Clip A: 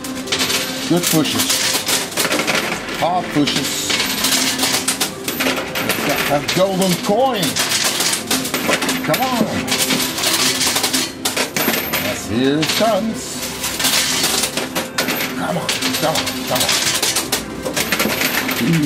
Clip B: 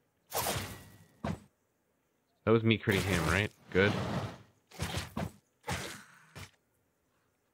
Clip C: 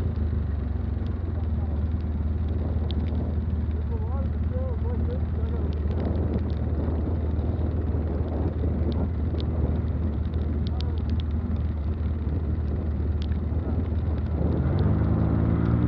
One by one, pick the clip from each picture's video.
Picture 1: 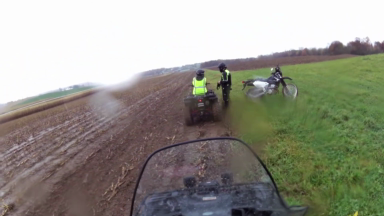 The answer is C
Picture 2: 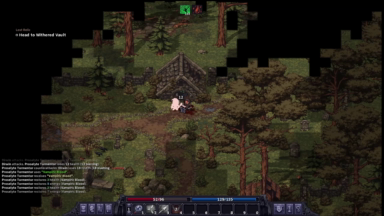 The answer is B